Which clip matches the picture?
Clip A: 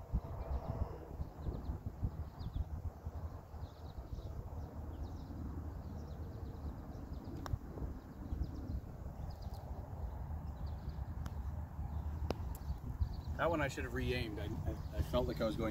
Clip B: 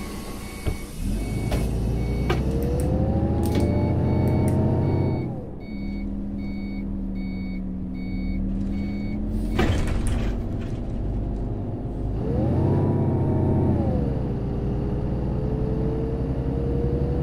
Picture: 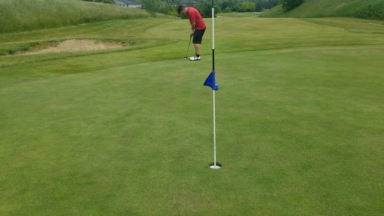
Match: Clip A